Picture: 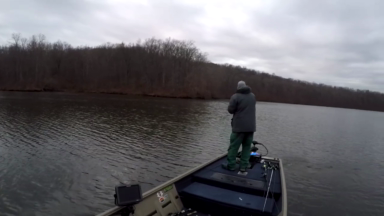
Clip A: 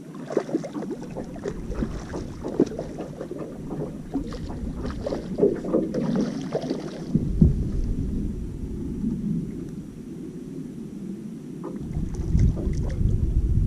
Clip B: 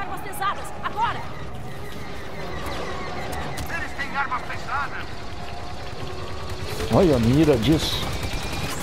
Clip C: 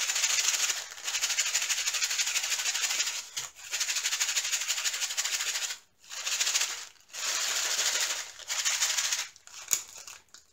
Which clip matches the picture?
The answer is A